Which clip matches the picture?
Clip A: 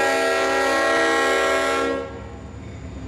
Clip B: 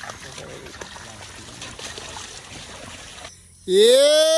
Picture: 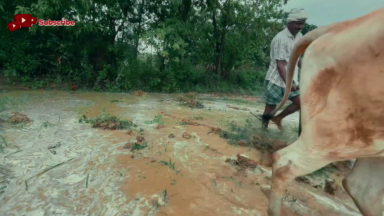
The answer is B